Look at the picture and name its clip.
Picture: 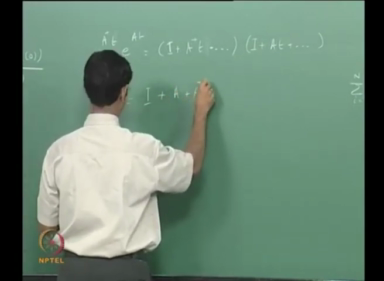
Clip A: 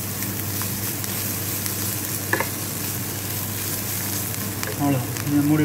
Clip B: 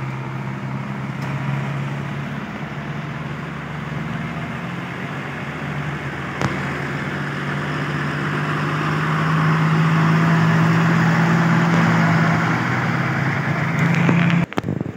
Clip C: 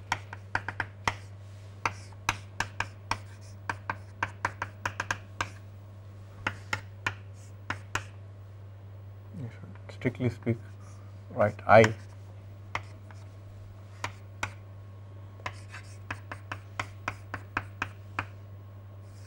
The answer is C